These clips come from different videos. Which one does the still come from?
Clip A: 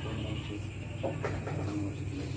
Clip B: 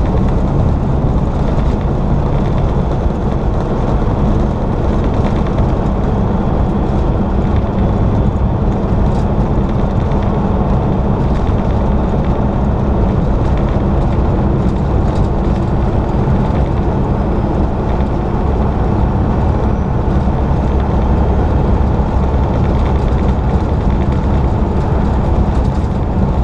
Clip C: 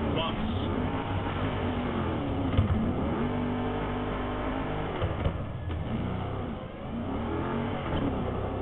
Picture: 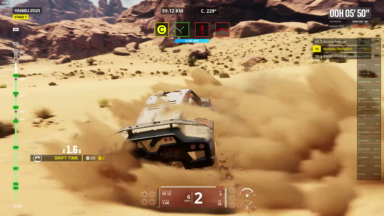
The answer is C